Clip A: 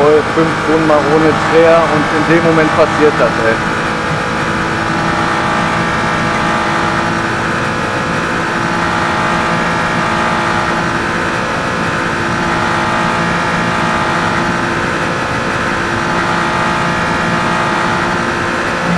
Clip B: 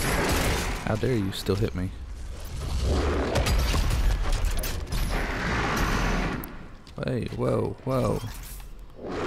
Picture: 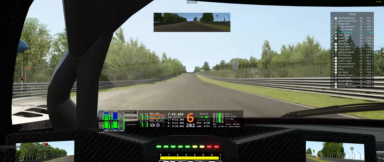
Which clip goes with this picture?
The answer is A